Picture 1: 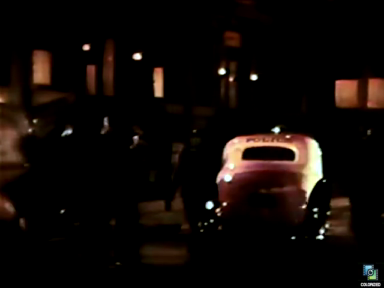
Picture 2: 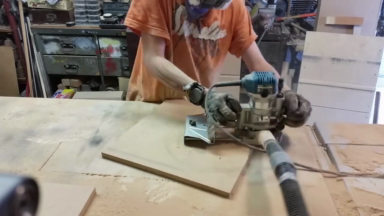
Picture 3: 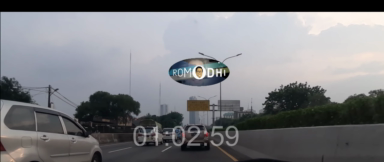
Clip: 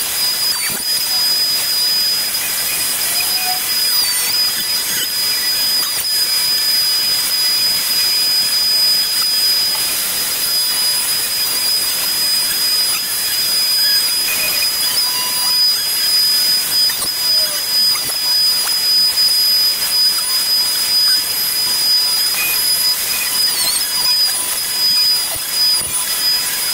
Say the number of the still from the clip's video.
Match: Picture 2